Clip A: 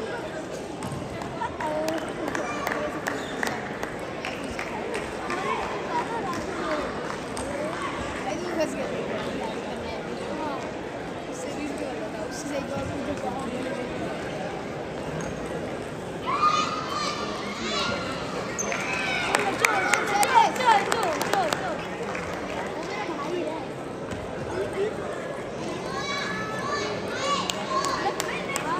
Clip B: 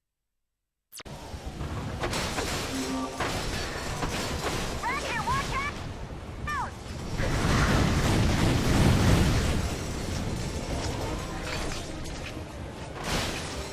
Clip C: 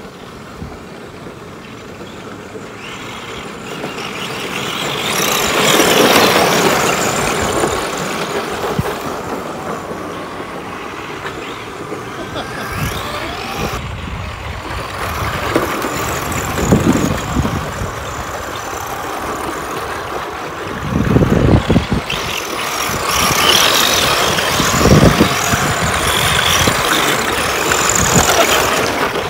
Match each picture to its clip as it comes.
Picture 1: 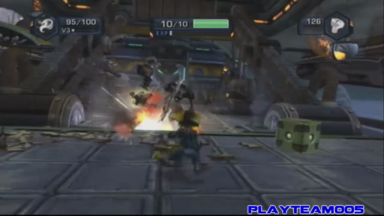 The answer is B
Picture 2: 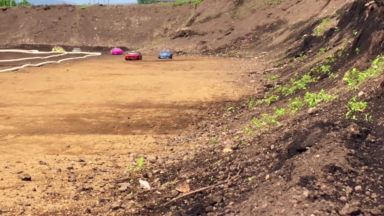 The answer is C